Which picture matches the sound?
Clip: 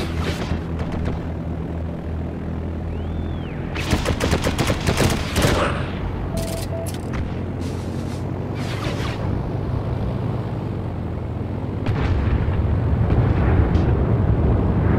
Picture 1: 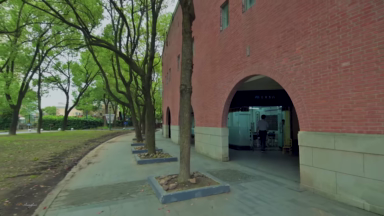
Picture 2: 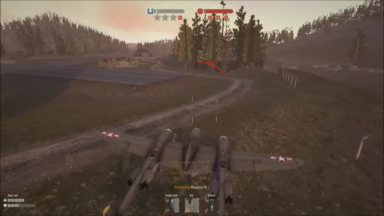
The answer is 2